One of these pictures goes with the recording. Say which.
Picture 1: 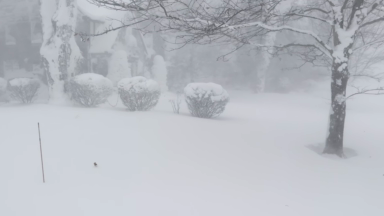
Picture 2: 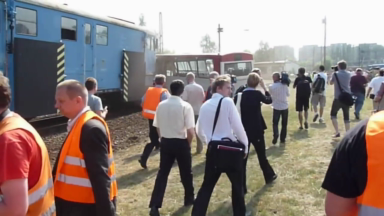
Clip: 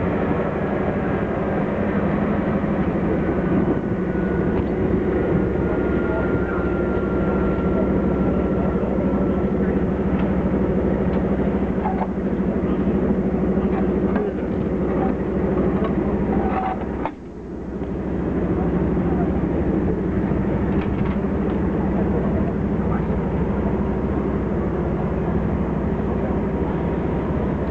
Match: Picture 2